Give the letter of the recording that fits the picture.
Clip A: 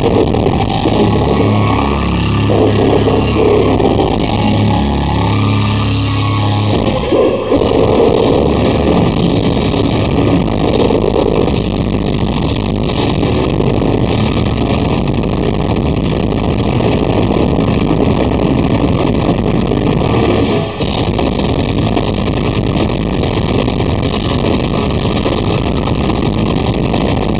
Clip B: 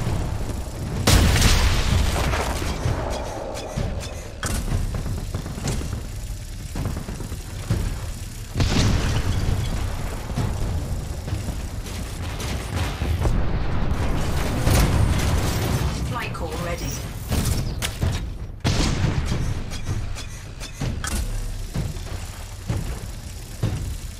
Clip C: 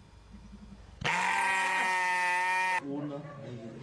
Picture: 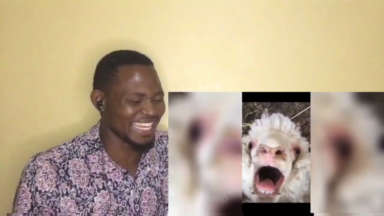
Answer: C